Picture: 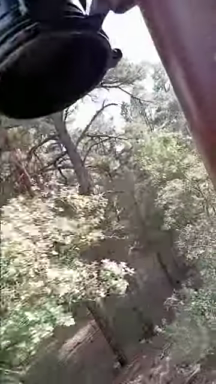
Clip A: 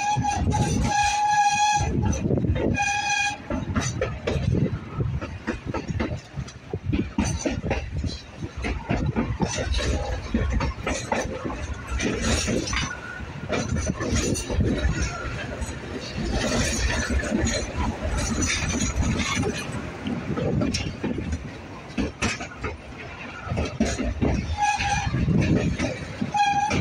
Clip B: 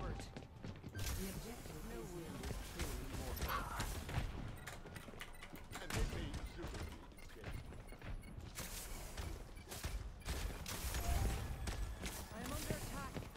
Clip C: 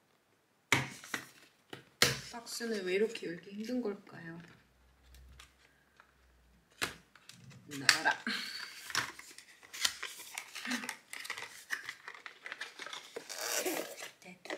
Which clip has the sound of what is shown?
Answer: A